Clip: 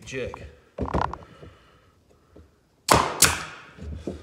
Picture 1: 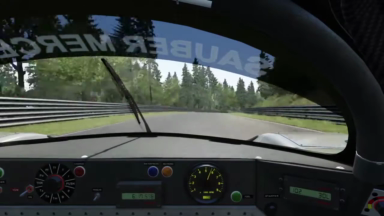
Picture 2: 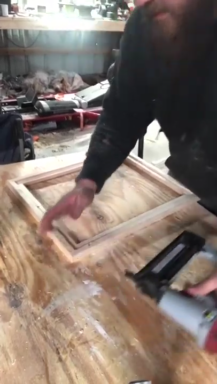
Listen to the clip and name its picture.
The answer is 2